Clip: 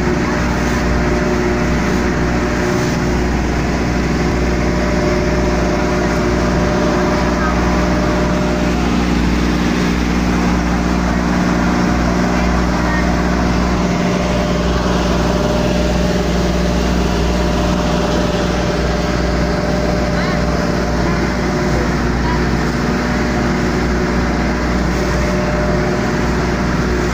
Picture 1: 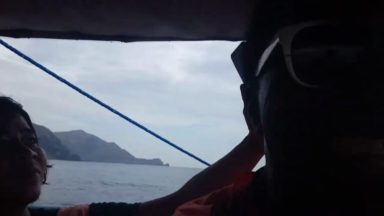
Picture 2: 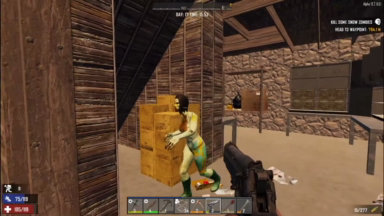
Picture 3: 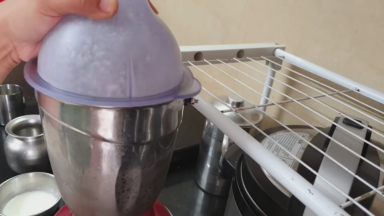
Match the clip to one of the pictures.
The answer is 1